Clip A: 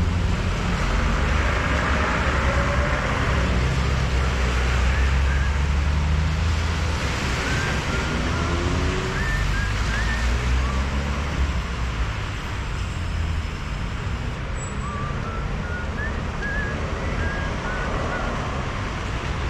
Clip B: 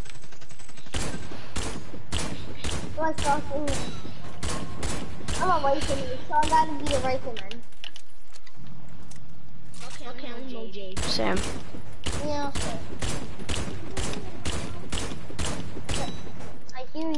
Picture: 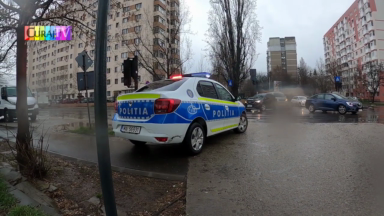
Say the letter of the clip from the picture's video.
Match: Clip A